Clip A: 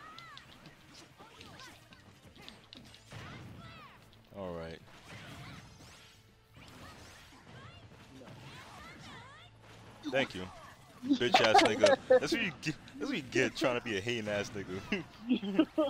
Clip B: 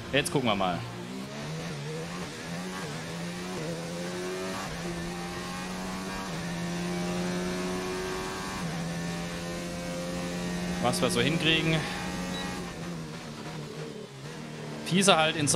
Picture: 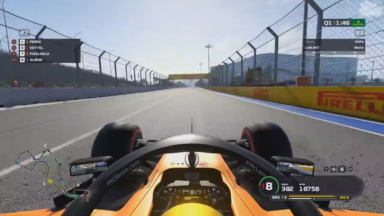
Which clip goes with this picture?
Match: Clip B